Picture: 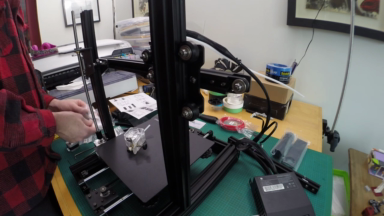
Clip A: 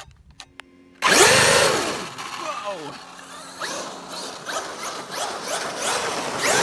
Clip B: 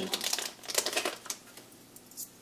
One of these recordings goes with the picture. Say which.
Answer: B